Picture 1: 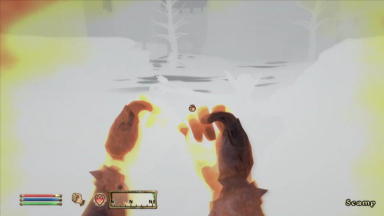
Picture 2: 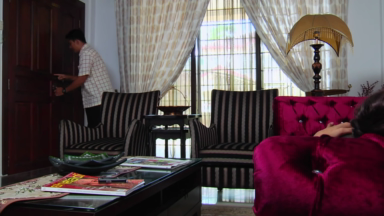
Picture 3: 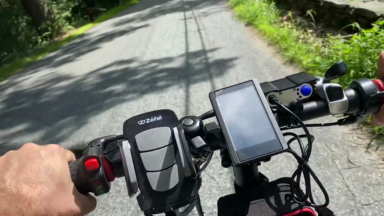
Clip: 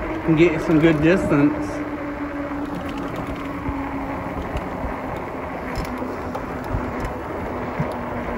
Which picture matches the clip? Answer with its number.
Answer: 3